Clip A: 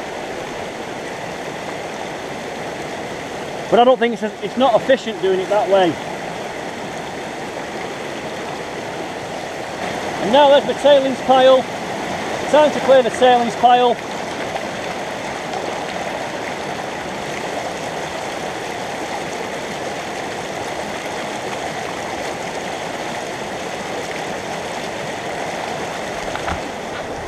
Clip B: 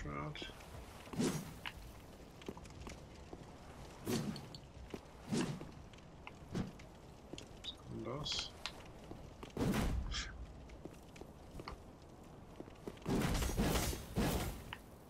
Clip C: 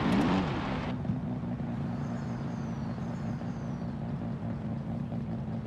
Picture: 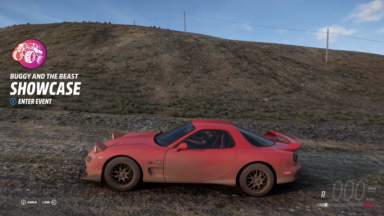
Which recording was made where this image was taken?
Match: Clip C